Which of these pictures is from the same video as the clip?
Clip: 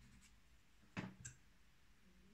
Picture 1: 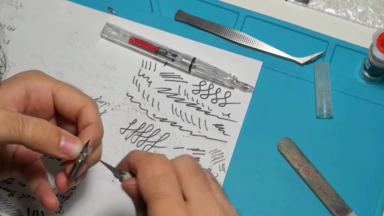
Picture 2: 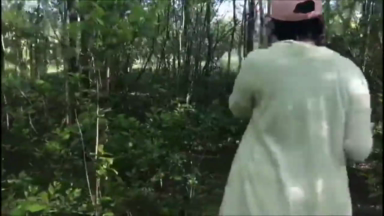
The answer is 1